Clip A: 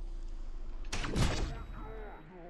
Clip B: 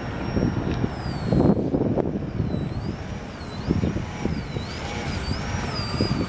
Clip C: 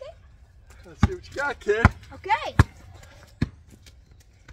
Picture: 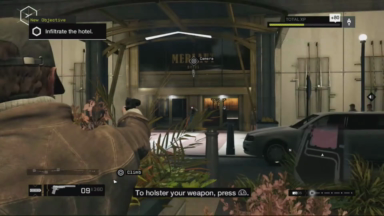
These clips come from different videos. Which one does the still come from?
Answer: A